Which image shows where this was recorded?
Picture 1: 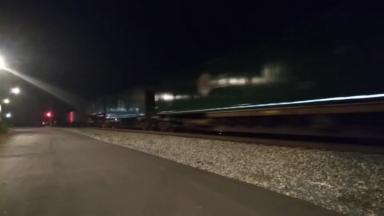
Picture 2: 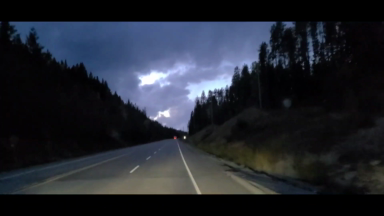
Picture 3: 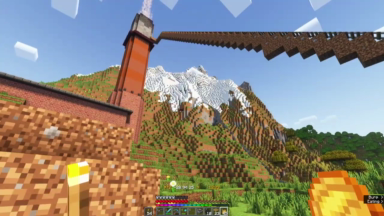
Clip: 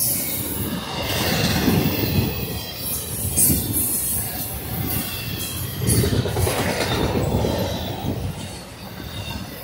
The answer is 1